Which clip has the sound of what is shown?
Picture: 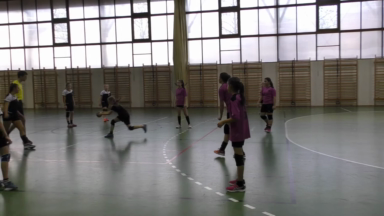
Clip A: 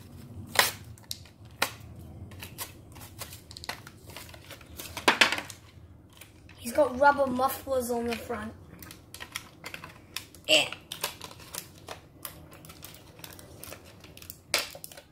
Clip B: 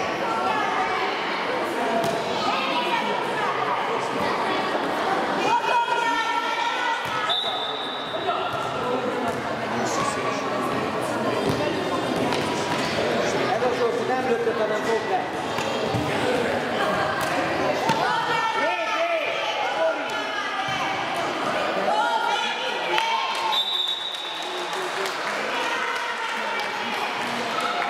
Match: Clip B